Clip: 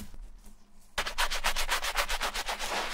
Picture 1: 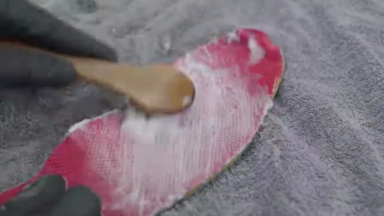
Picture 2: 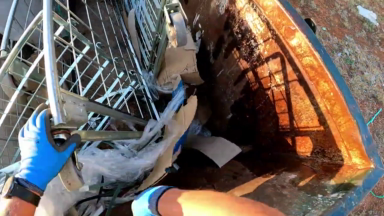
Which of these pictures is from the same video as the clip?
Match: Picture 1